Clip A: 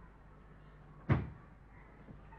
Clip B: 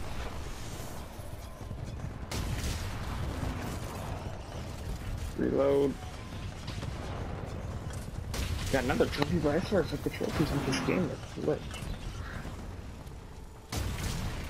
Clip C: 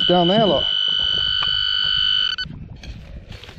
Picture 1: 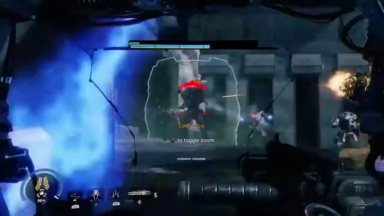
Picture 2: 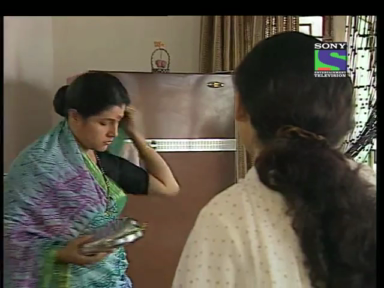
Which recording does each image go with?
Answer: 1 B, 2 A